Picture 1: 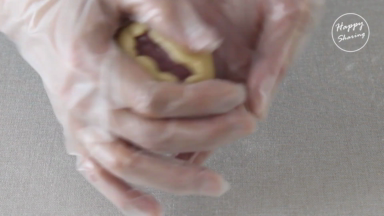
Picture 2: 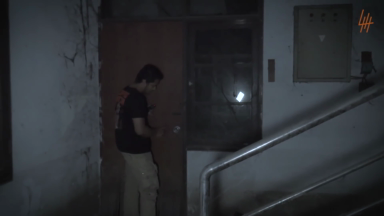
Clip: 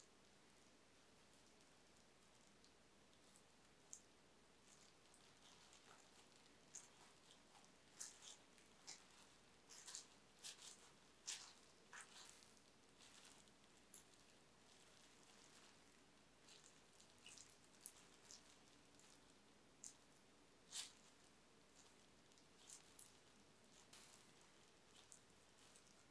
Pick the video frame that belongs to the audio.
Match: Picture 1